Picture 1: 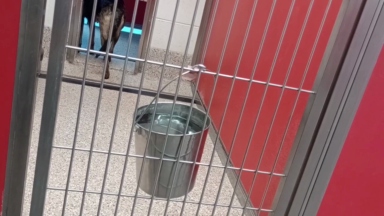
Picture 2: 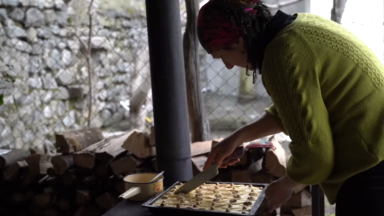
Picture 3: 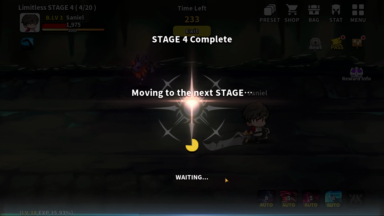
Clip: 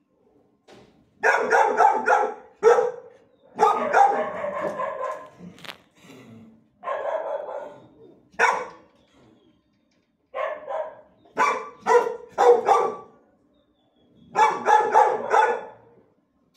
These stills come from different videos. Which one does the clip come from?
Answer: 1